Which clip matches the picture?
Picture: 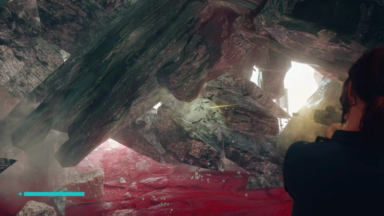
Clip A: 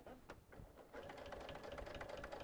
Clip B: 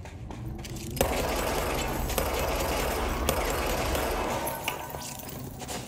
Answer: B